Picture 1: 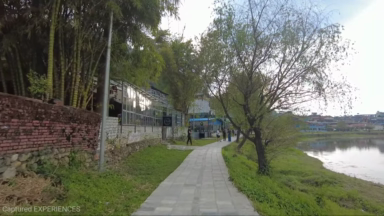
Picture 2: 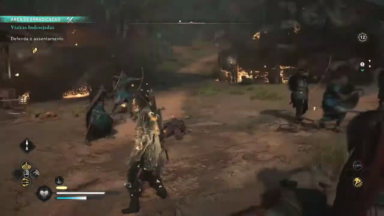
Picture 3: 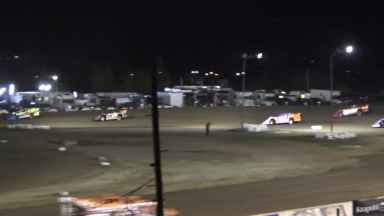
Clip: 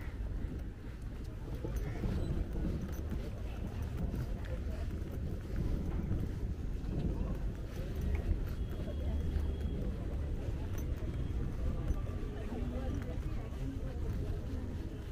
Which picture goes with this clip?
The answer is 1